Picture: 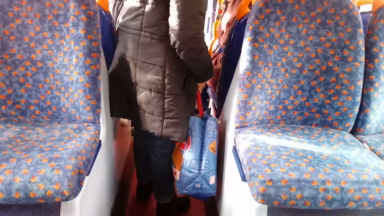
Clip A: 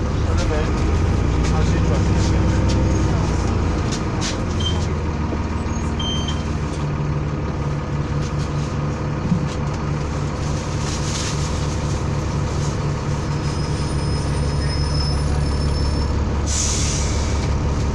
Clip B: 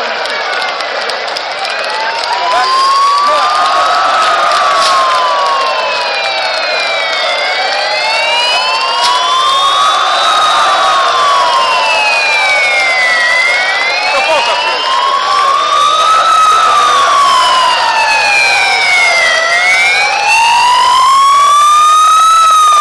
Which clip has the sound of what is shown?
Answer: A